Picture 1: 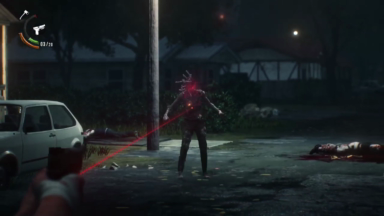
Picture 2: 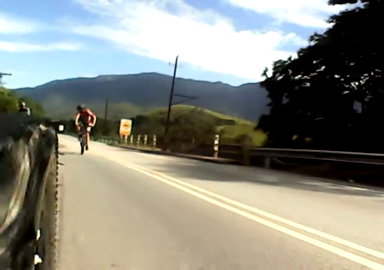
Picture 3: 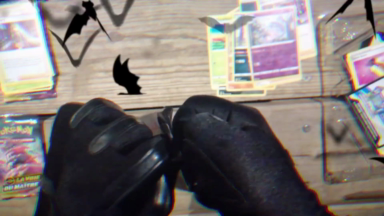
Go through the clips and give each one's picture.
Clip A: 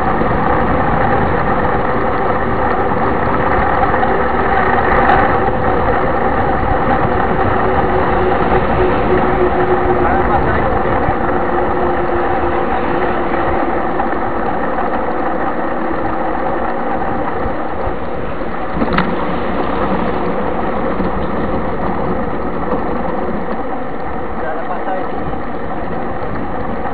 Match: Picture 2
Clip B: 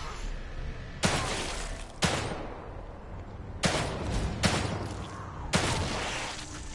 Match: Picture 1